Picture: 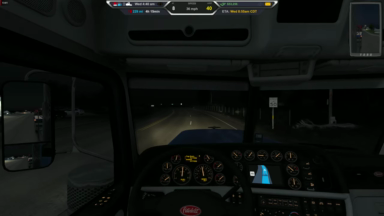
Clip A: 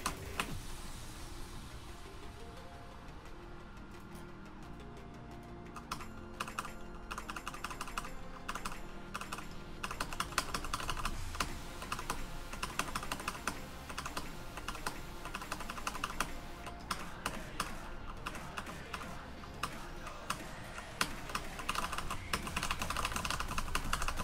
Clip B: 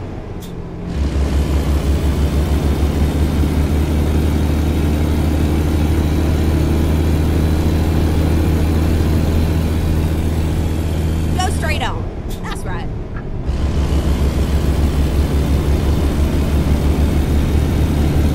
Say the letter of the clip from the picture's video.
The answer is B